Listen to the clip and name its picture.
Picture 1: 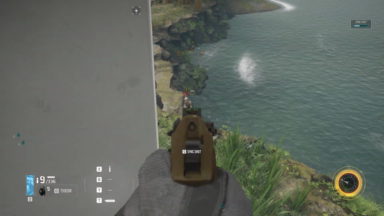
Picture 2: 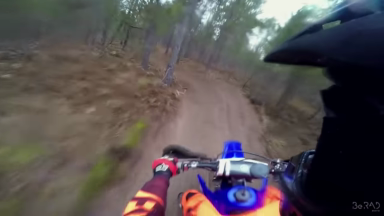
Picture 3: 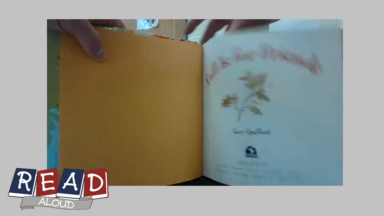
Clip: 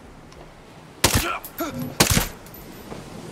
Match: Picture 1